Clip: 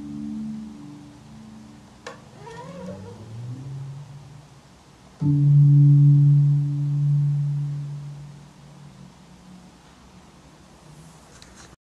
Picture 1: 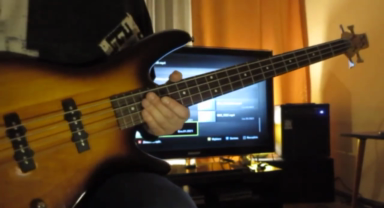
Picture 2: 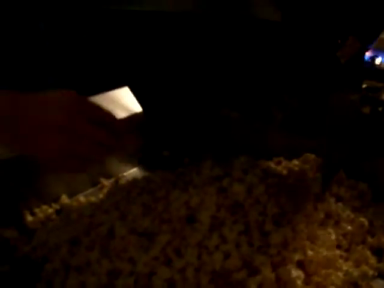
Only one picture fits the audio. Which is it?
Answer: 1